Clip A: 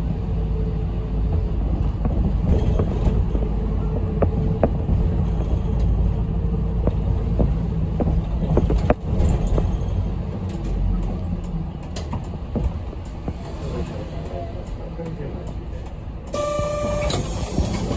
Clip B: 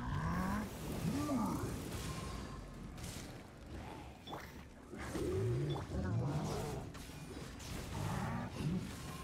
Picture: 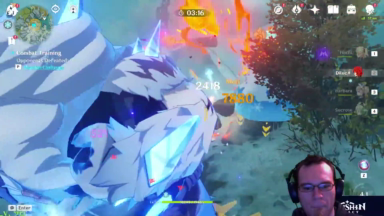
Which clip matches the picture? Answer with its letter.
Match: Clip B